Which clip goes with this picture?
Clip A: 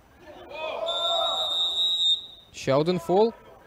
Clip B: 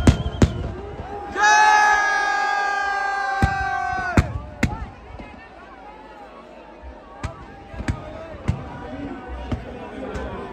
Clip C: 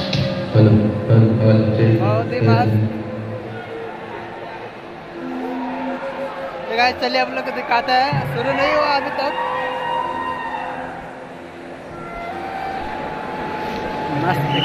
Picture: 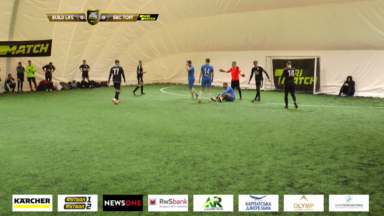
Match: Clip A